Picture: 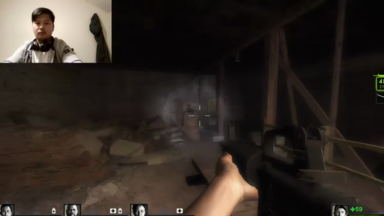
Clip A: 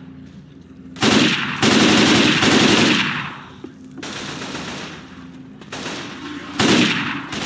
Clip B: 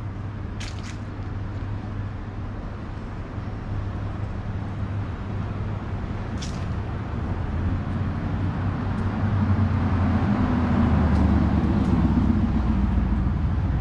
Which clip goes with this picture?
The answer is A